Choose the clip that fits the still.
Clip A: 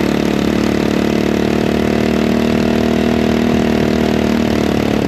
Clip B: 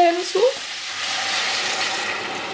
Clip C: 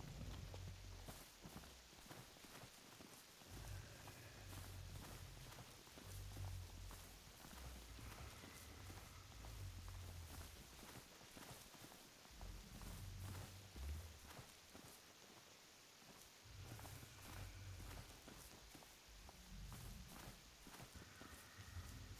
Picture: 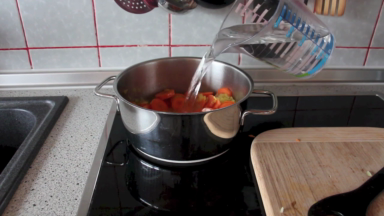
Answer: B